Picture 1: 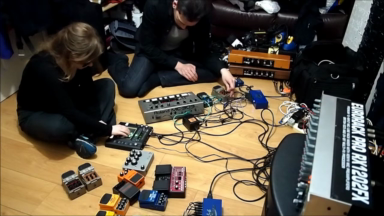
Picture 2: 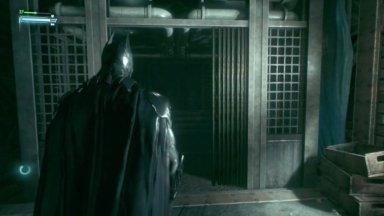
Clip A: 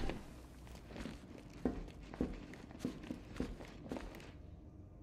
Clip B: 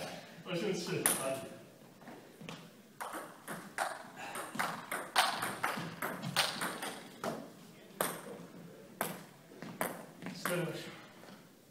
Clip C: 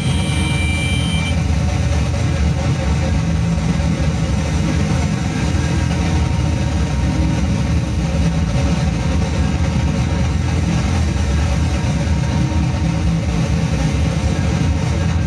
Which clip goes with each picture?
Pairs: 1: C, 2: A